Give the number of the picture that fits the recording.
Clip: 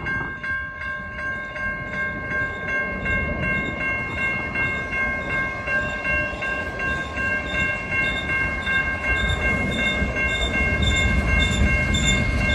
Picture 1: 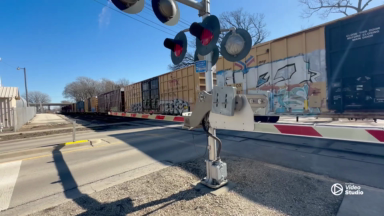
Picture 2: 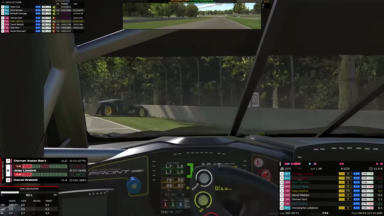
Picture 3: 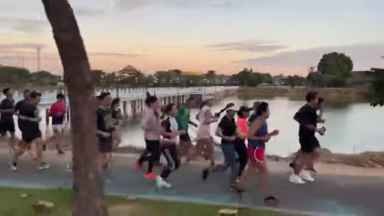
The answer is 1